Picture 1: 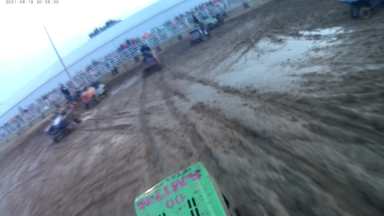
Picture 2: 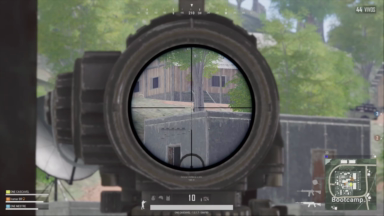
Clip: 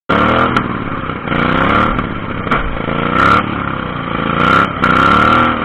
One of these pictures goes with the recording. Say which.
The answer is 1